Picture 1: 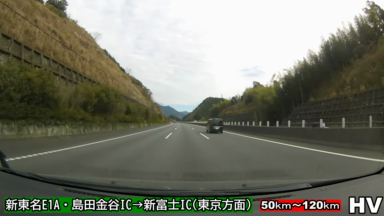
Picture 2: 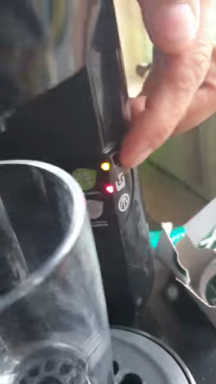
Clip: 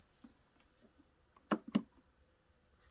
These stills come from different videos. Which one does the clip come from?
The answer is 2